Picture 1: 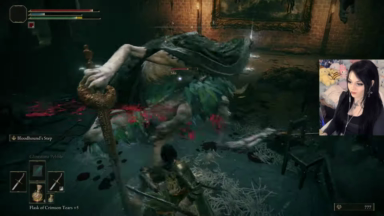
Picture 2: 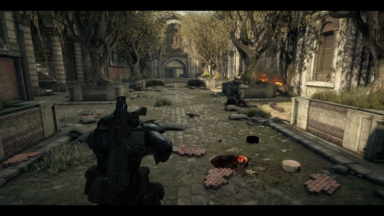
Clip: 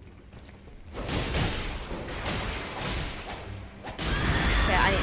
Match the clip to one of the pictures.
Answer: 1